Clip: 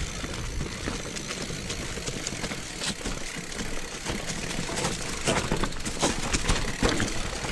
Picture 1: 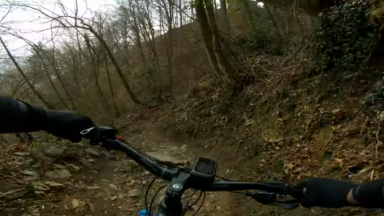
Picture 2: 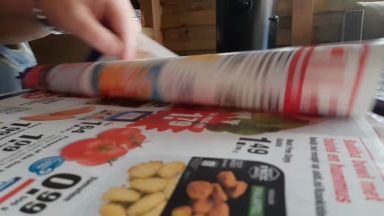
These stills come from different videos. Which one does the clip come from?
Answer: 1